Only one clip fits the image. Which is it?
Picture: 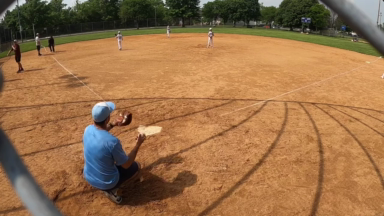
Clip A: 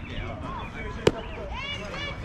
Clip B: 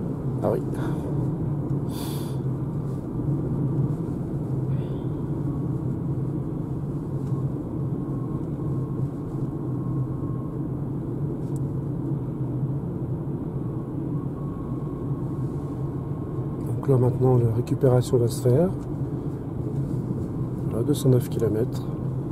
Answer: A